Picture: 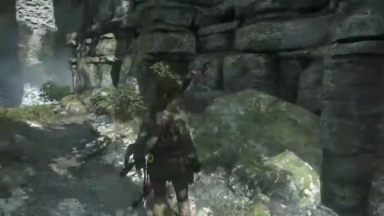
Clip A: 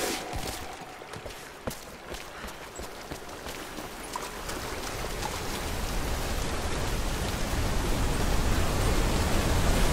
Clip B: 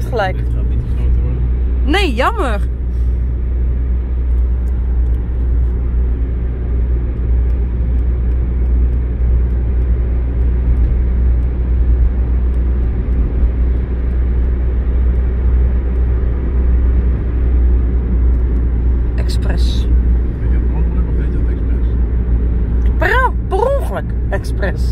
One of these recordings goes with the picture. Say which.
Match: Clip A